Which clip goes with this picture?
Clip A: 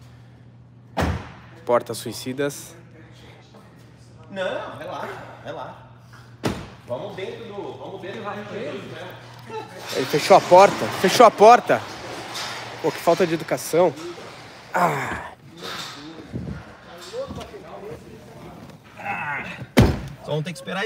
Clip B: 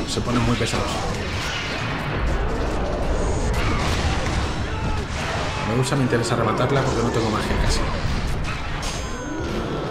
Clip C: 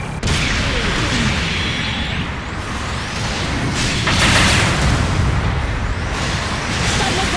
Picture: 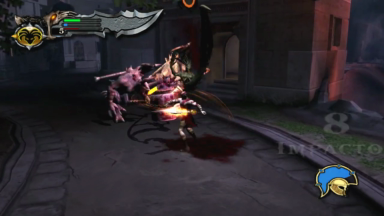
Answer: B